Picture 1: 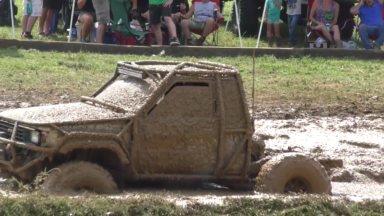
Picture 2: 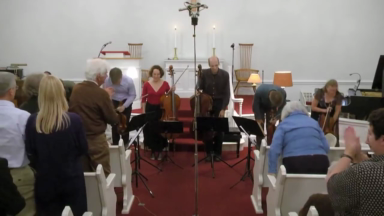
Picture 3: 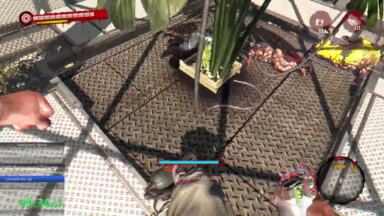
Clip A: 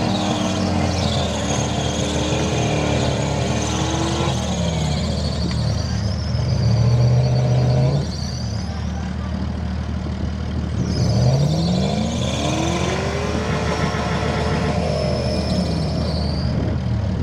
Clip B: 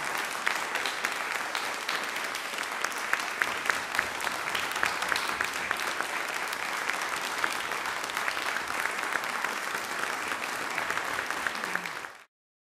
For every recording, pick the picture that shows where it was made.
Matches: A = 1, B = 2